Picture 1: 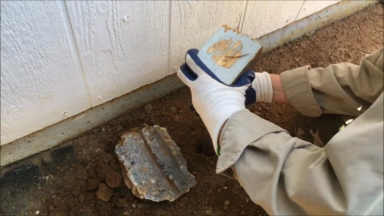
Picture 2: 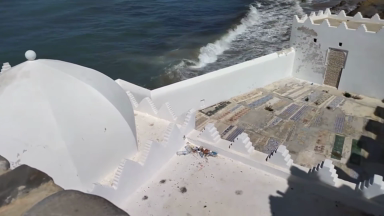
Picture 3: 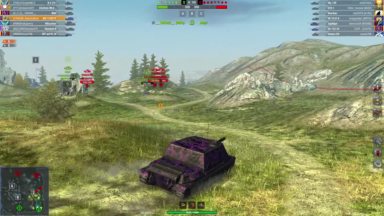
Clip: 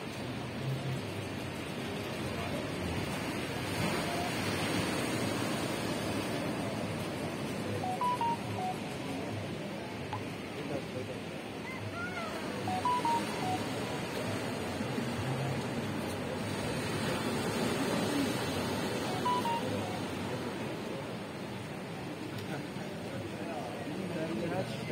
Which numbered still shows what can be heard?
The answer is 2